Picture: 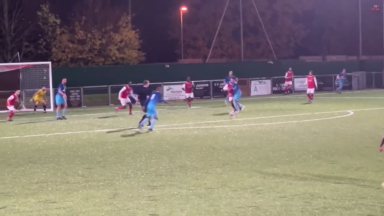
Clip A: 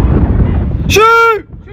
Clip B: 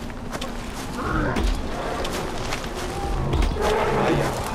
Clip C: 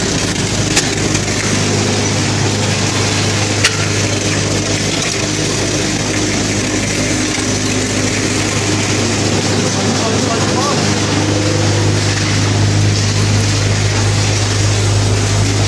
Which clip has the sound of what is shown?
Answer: A